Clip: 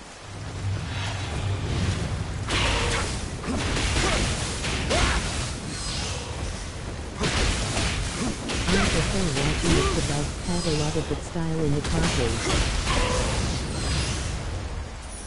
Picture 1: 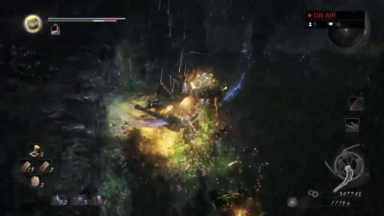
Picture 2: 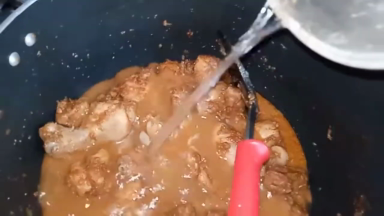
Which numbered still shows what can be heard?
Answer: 1